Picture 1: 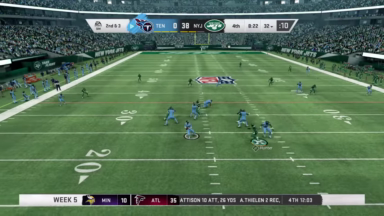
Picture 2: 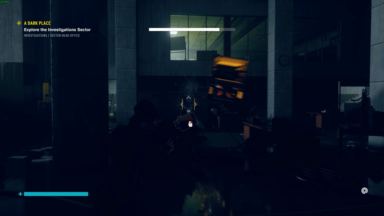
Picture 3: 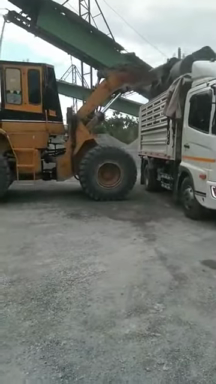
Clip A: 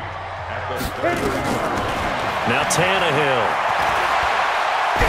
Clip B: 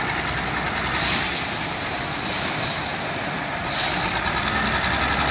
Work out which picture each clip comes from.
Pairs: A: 1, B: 3